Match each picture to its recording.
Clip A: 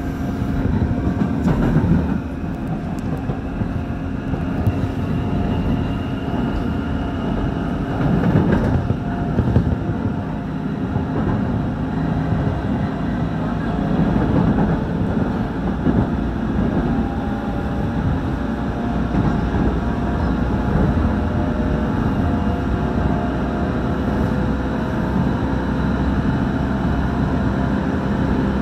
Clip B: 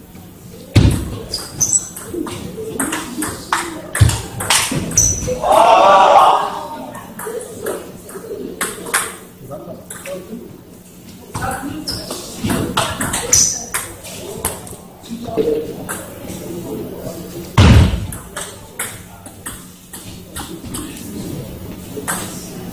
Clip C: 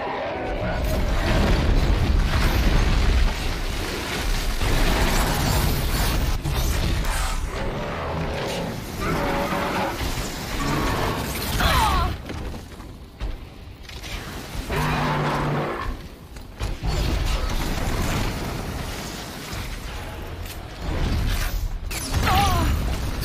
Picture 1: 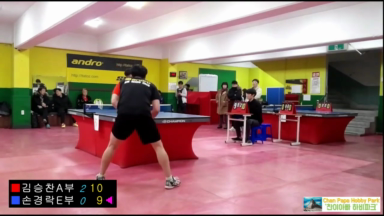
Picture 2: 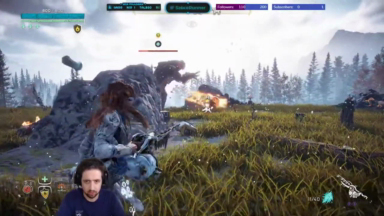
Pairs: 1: B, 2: C